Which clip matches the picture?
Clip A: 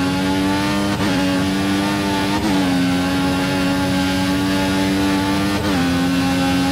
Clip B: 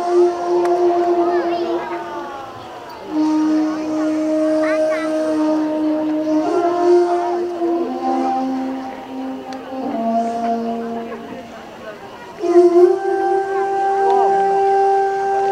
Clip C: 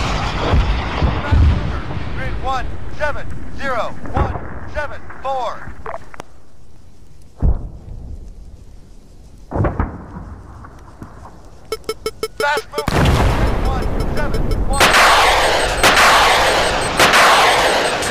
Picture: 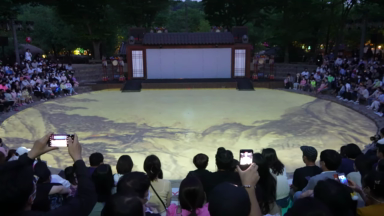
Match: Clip B